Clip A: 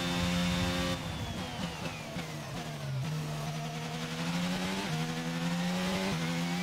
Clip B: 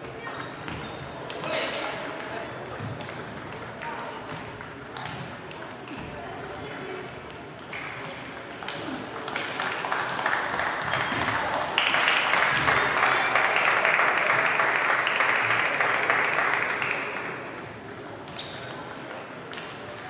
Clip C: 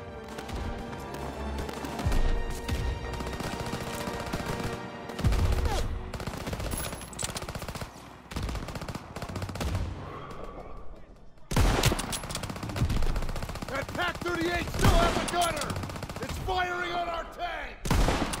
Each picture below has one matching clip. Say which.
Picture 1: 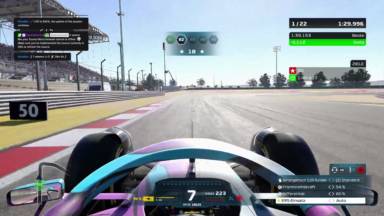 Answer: A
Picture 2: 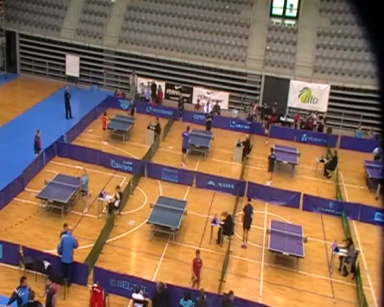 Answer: B